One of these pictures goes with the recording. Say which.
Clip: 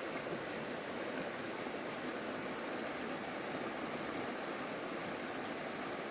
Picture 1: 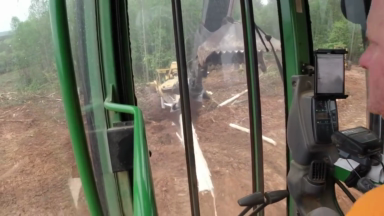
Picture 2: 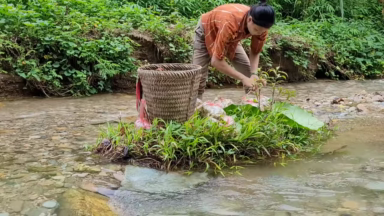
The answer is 2